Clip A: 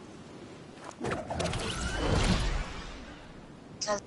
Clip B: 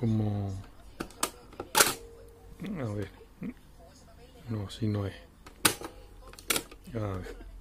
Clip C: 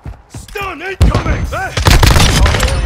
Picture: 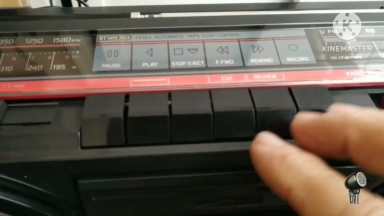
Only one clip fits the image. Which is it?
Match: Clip B